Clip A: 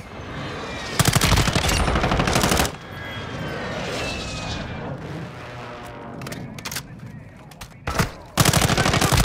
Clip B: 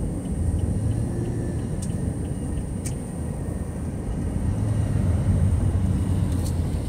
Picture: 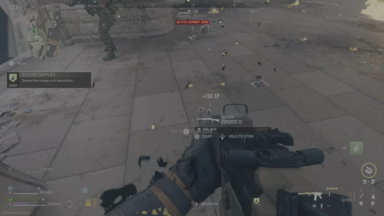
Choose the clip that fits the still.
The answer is A